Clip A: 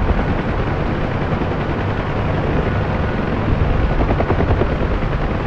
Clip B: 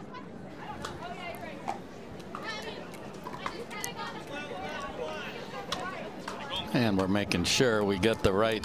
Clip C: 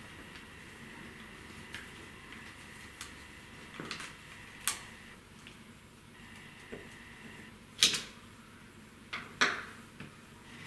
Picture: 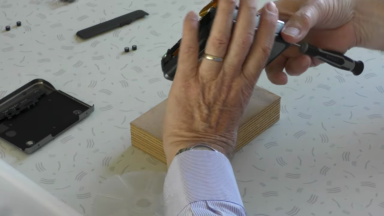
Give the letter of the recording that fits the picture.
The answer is C